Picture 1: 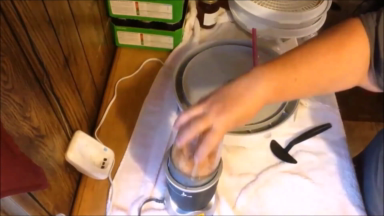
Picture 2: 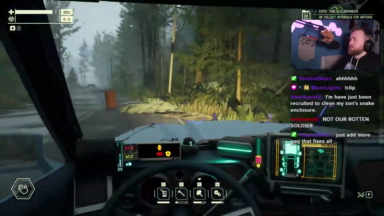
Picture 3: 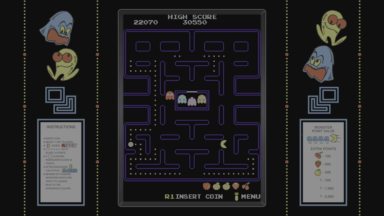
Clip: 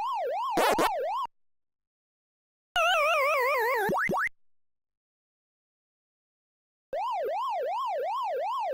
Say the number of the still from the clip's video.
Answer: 3